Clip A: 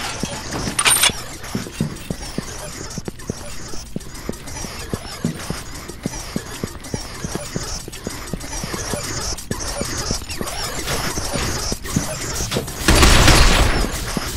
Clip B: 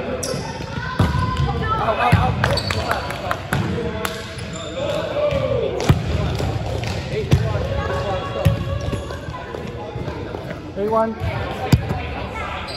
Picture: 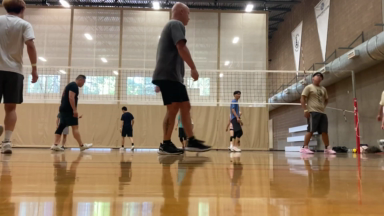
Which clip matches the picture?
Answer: B